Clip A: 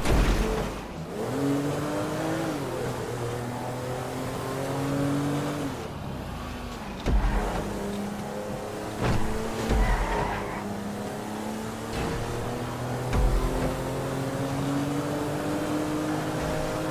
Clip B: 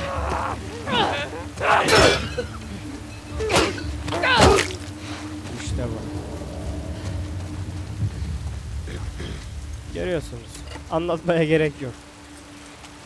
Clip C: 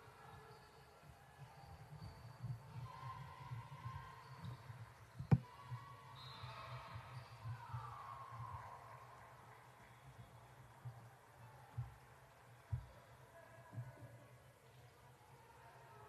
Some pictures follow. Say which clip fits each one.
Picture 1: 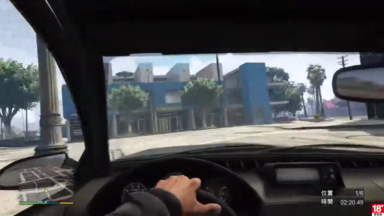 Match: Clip A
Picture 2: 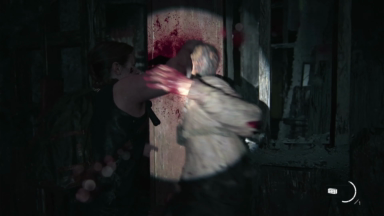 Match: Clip B